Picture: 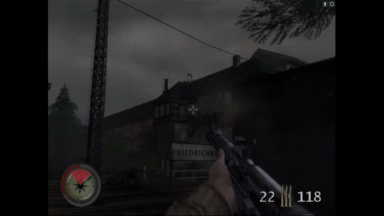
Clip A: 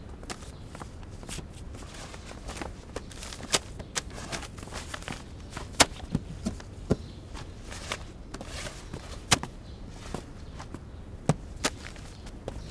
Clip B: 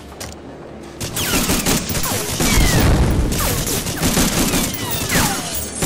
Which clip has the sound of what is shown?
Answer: B